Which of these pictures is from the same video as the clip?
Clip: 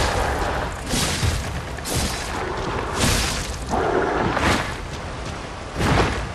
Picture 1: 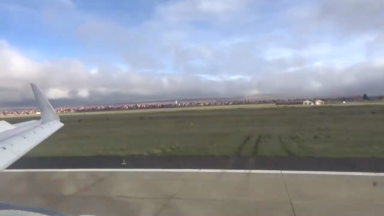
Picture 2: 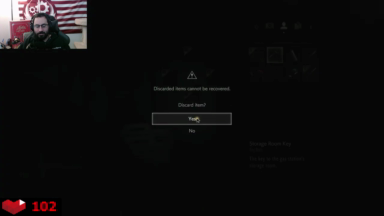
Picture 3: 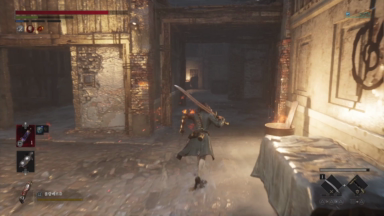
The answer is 3